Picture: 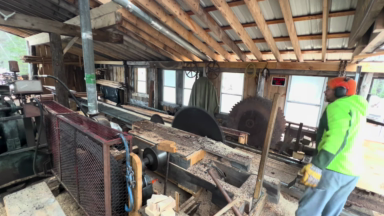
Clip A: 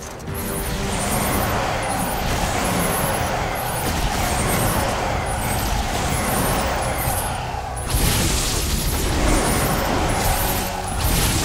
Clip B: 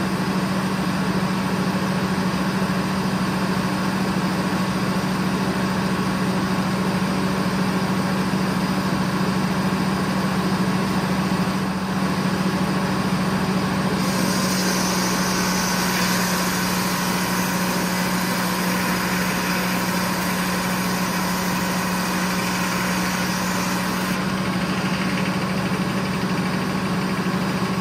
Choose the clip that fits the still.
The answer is B